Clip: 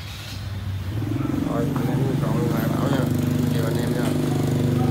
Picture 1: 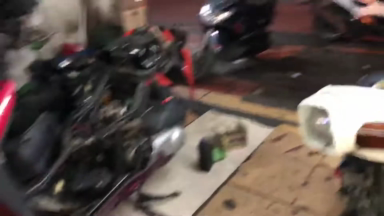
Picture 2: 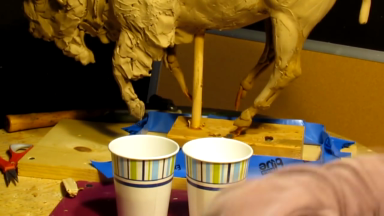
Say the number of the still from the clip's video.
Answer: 1